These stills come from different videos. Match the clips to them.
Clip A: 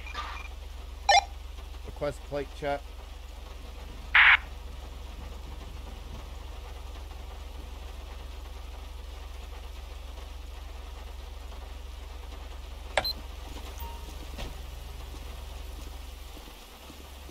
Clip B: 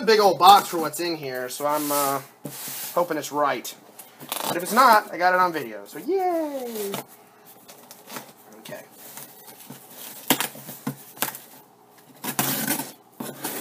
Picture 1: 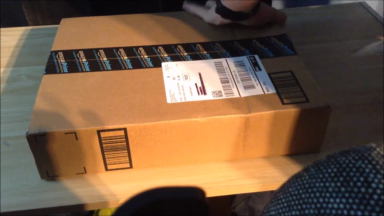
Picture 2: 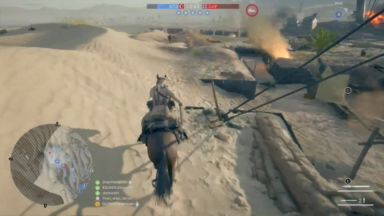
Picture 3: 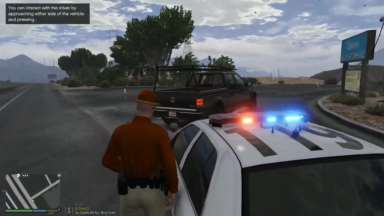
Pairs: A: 3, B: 1